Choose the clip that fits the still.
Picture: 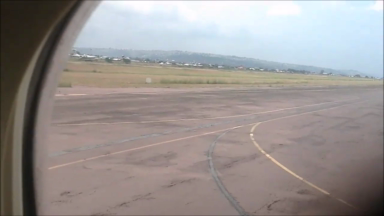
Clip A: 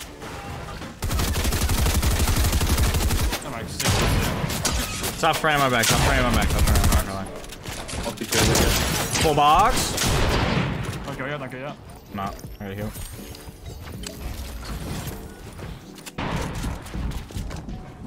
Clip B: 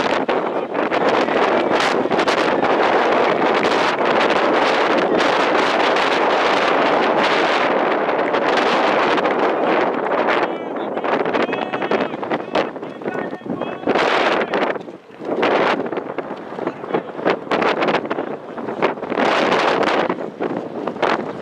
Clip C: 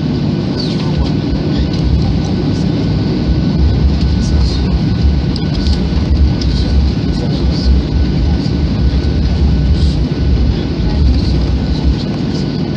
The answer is C